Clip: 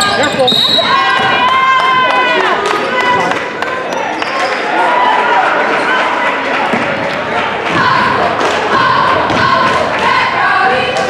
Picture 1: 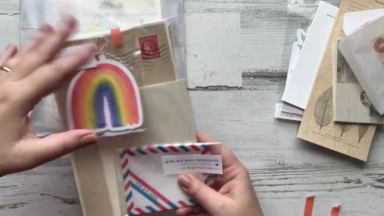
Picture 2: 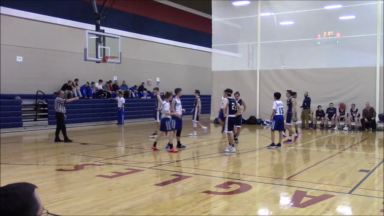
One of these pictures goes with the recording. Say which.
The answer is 2